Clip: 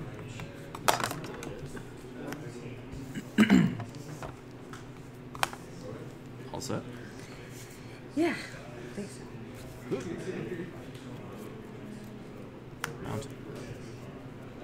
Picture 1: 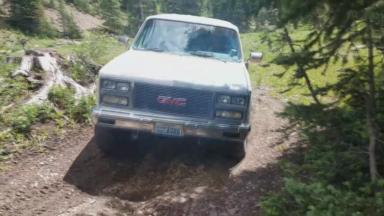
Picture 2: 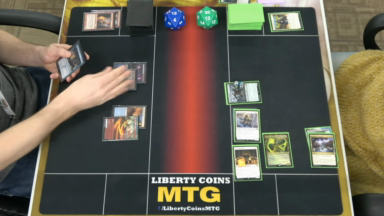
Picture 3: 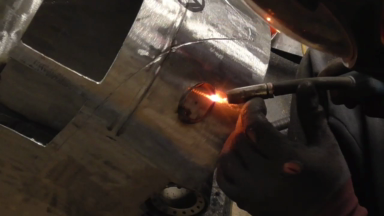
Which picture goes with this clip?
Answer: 2